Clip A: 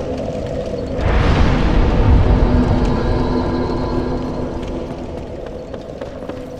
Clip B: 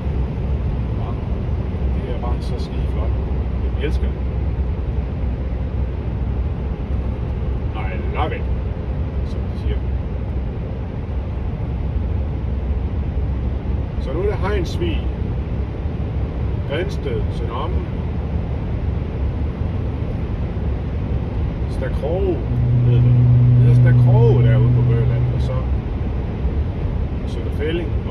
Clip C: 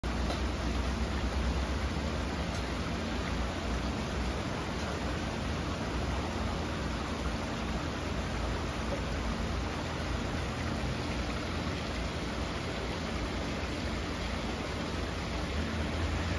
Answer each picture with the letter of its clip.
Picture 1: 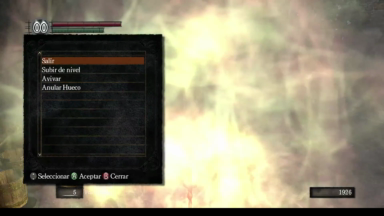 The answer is A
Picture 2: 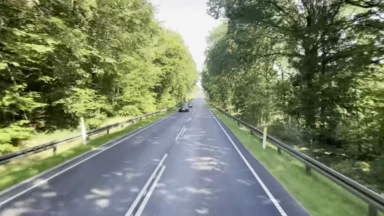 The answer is B